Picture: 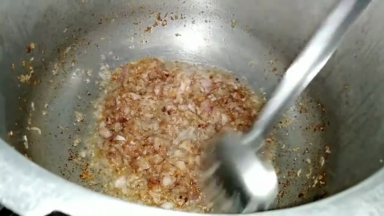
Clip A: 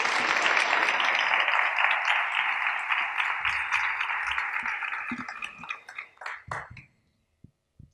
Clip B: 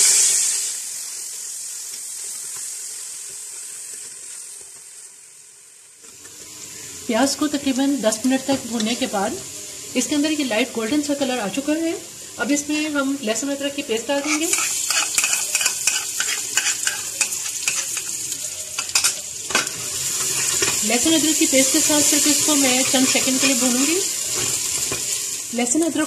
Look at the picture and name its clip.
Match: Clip B